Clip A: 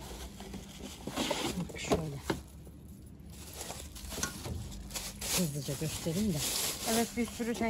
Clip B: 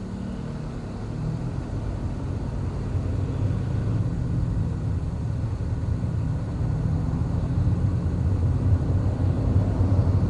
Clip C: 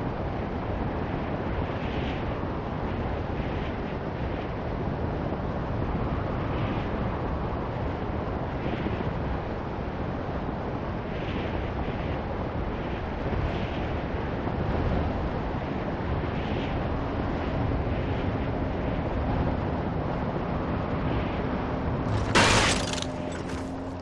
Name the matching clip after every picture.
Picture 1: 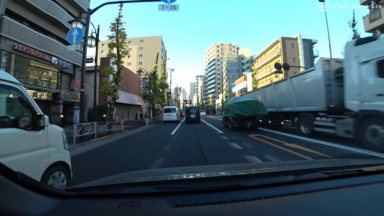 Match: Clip B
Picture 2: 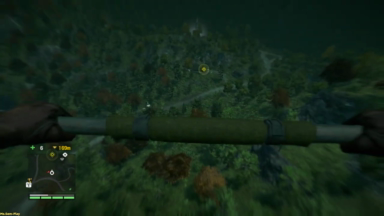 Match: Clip C